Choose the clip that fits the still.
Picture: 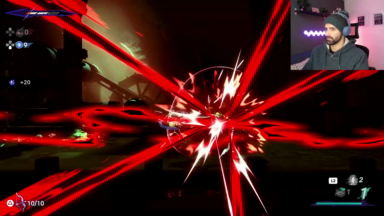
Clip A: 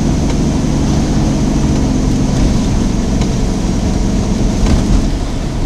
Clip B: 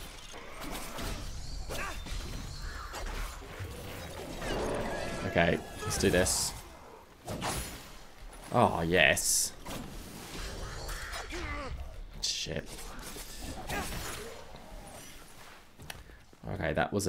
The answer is B